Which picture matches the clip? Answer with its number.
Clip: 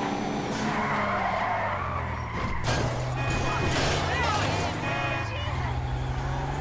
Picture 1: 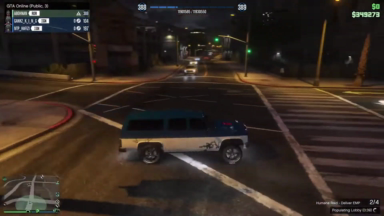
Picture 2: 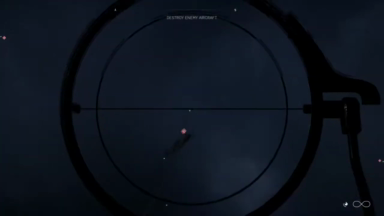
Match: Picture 1